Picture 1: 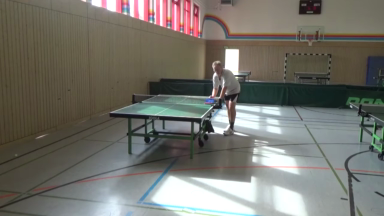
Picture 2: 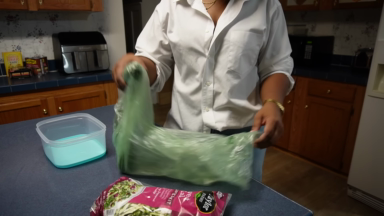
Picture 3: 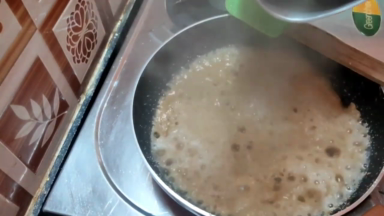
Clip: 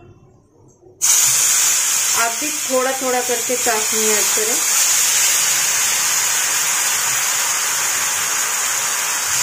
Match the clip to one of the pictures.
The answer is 3